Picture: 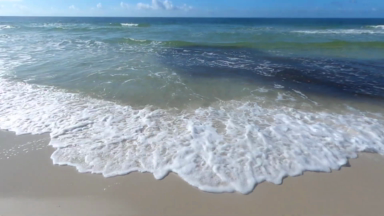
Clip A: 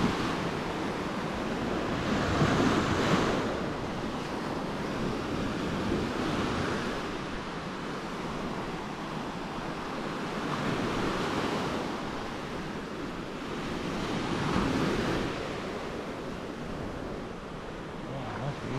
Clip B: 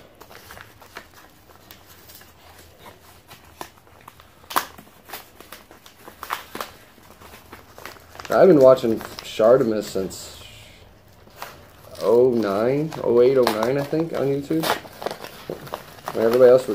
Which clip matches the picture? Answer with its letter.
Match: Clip A